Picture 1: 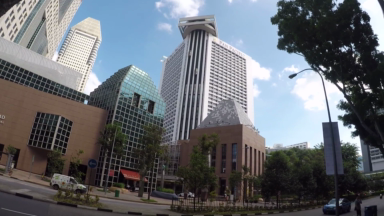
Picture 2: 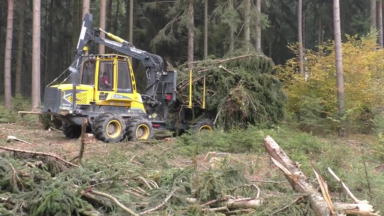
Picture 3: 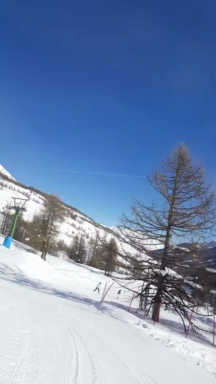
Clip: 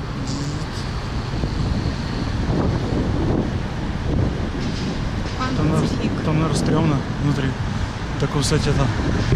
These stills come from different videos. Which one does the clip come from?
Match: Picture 1